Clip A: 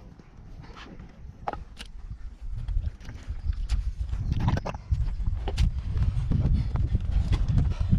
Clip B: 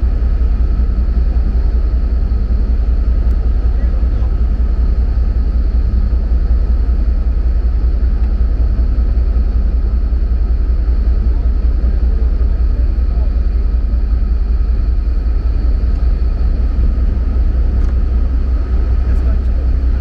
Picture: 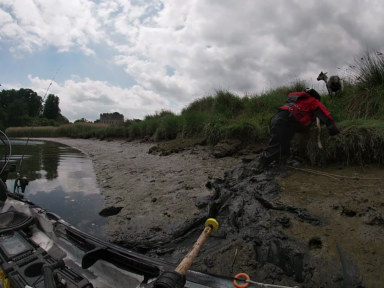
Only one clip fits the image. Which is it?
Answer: A